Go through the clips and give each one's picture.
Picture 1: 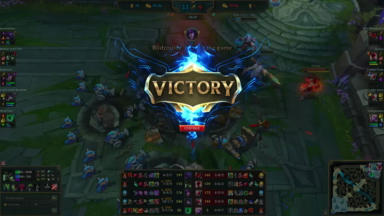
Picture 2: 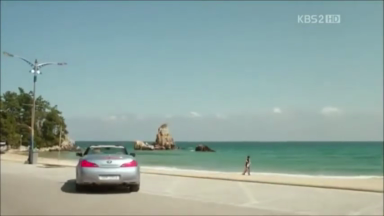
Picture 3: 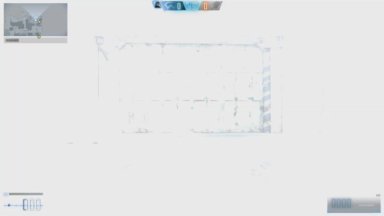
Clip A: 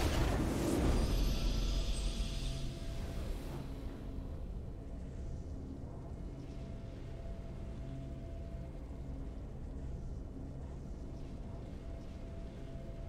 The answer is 1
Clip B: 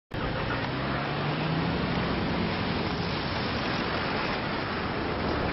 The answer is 2